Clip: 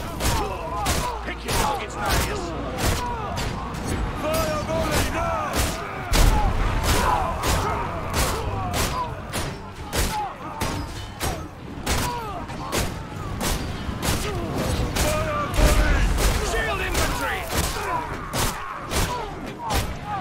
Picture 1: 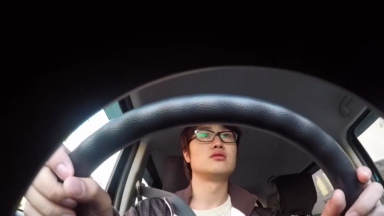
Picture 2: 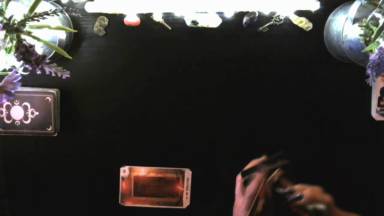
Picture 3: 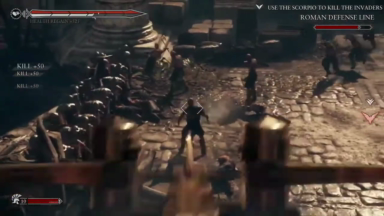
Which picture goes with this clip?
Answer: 3